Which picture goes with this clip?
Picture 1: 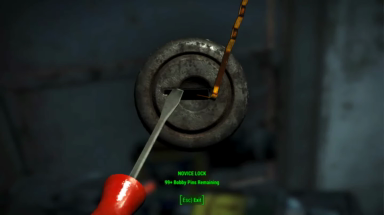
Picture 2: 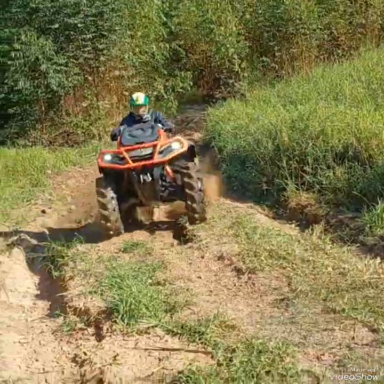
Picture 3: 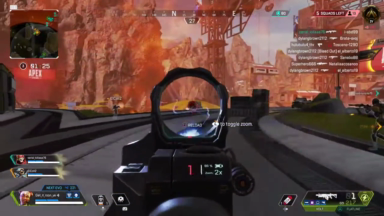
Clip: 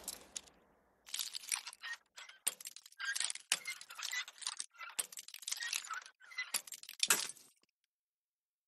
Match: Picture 1